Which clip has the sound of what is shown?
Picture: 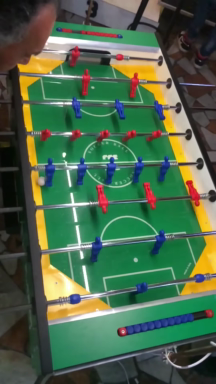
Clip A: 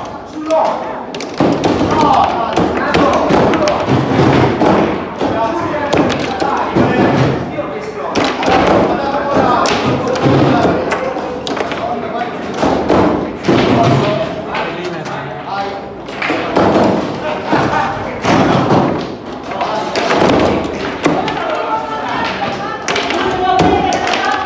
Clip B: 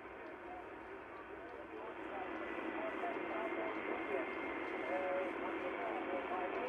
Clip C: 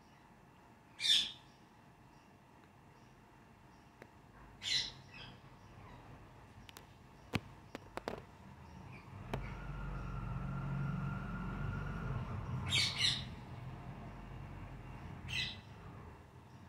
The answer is A